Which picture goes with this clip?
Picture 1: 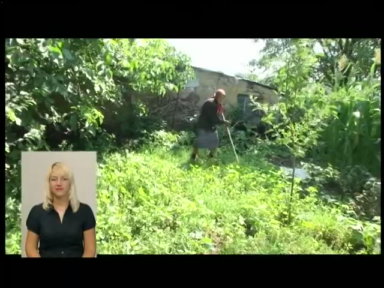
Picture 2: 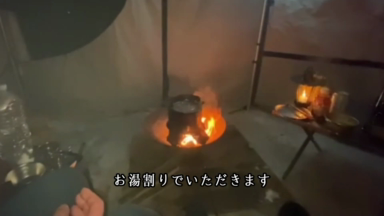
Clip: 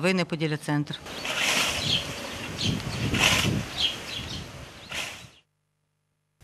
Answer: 1